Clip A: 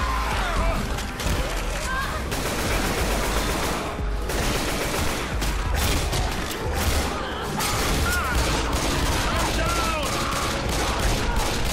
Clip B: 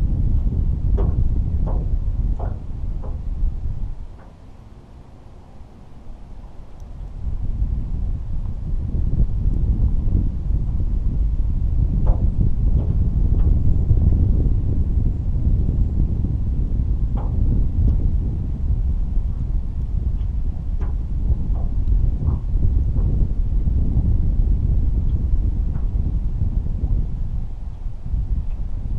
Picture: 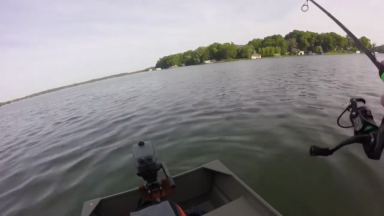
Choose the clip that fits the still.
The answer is B